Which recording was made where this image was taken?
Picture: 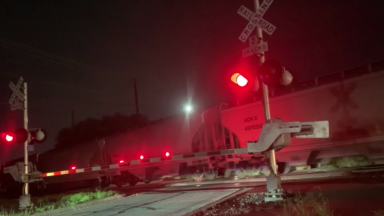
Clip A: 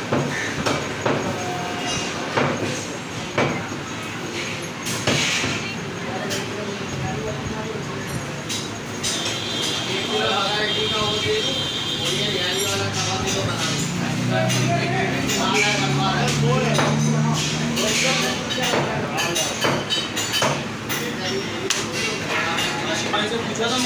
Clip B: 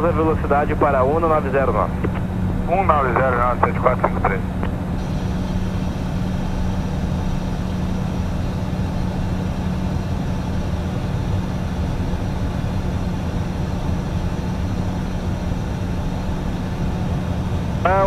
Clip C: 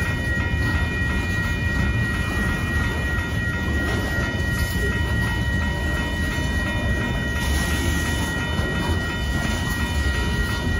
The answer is C